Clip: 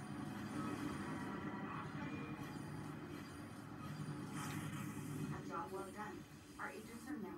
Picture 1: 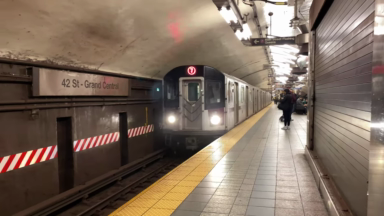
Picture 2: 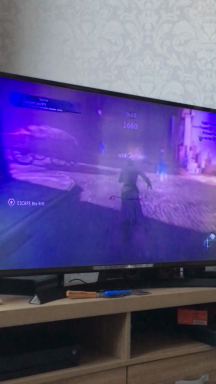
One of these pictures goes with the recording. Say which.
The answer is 2